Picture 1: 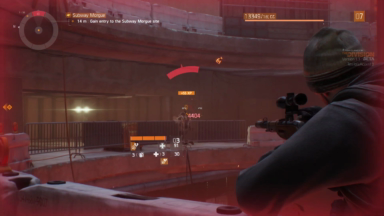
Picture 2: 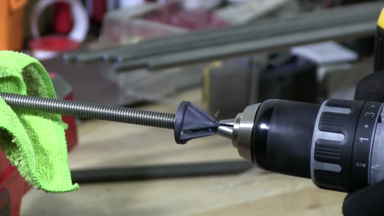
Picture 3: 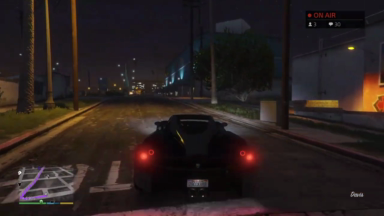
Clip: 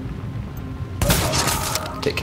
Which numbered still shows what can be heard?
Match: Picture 1